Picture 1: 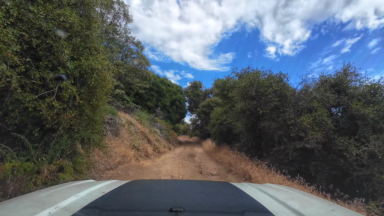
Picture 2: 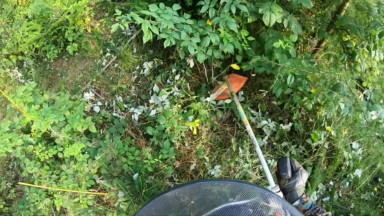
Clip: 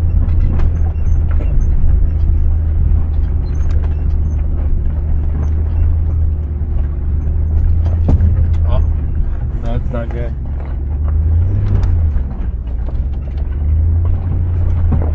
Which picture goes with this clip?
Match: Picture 1